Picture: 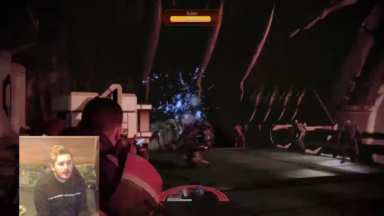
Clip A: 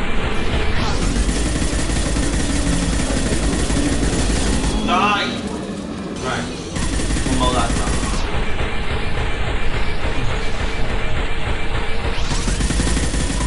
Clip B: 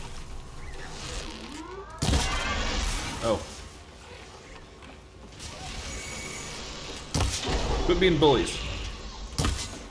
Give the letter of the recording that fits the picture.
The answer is A